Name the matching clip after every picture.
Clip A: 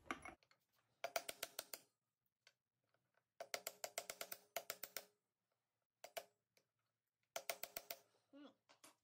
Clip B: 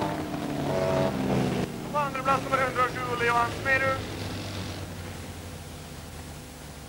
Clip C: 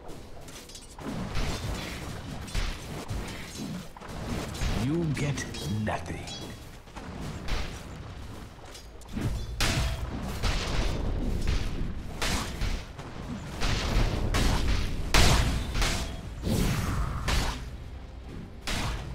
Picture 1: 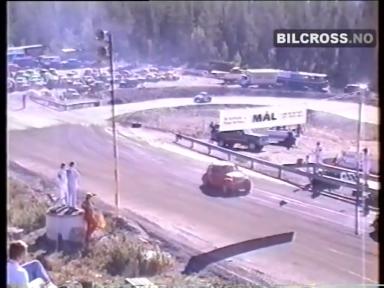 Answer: B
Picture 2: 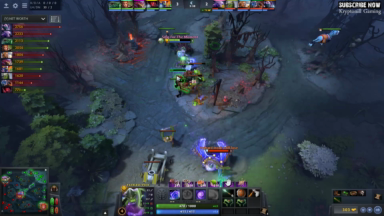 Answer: C